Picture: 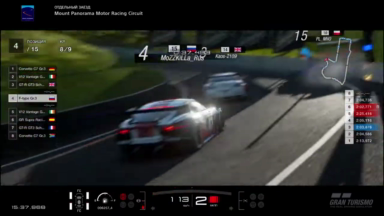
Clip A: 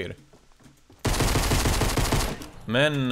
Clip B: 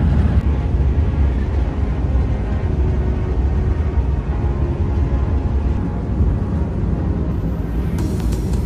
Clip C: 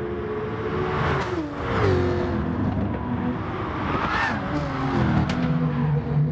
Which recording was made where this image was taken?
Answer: C